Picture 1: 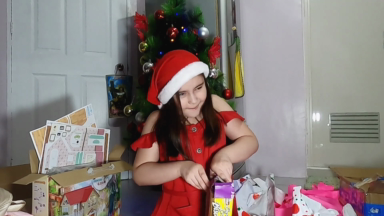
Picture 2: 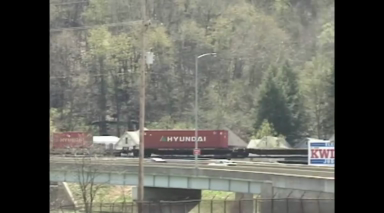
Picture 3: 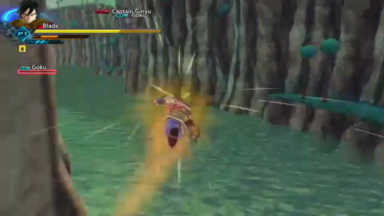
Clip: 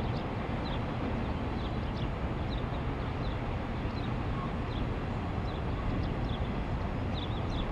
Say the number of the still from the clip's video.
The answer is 2